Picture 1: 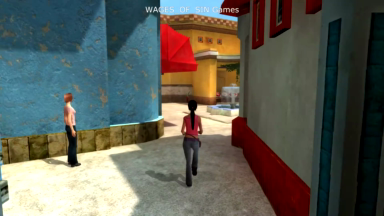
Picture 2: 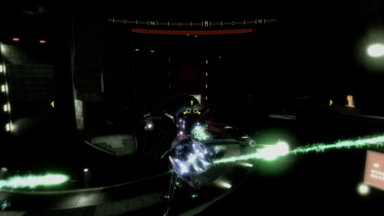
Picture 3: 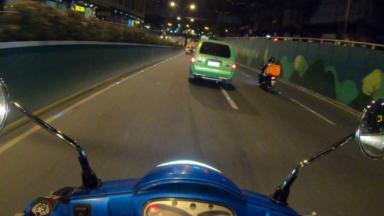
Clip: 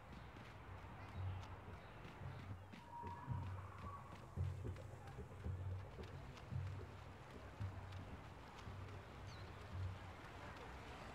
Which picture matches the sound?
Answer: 1